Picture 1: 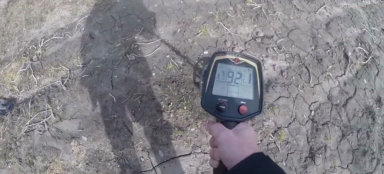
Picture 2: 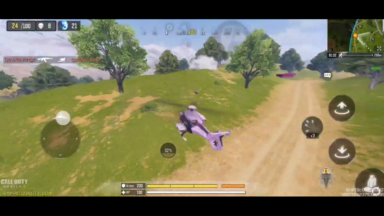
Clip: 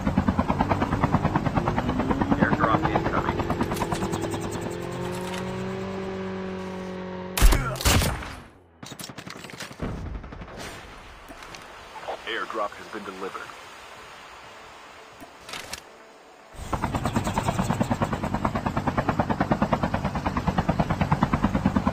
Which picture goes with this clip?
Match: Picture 2